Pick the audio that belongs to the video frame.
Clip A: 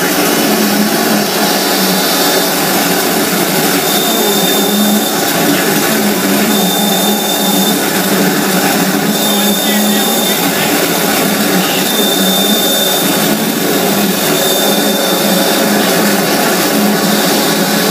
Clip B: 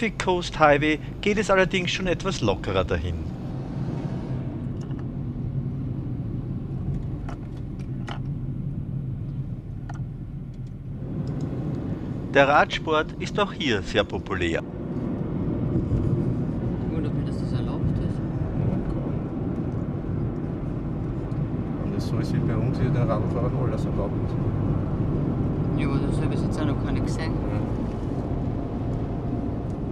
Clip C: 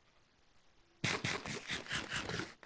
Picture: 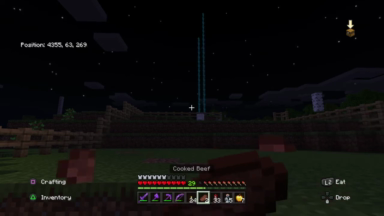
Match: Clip C